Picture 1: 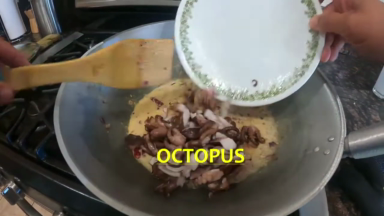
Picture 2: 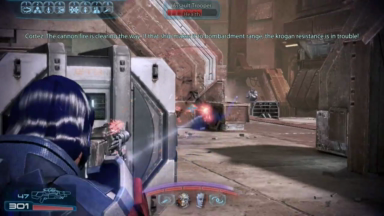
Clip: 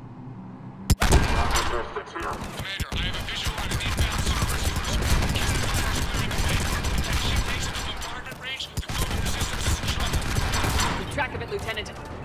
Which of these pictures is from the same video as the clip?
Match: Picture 2